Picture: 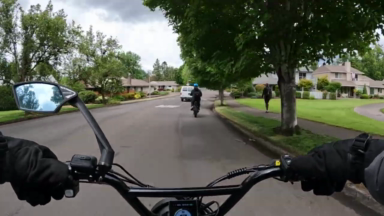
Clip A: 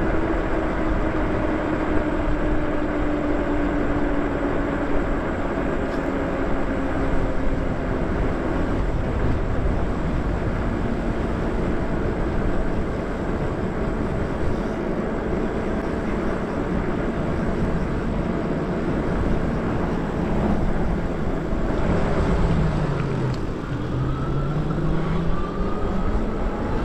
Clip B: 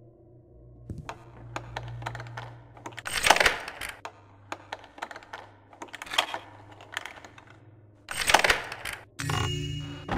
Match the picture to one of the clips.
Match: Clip A